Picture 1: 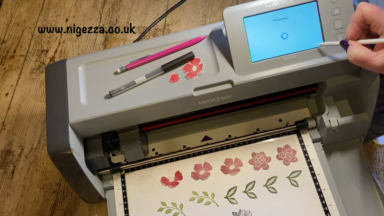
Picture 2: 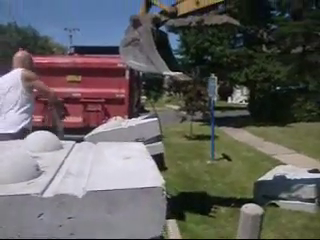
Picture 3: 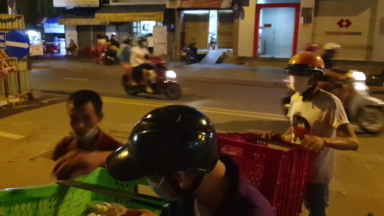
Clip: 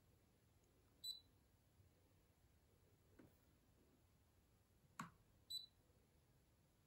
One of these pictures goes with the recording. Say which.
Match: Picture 1